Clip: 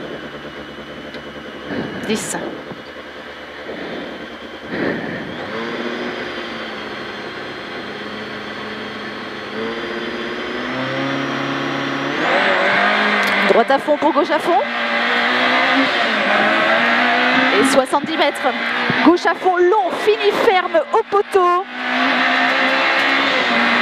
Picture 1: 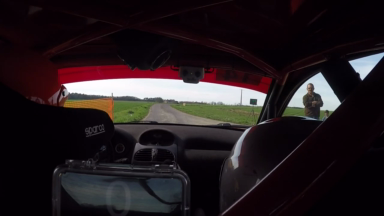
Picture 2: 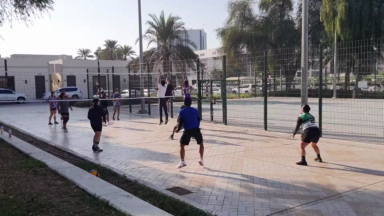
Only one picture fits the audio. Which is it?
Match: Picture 1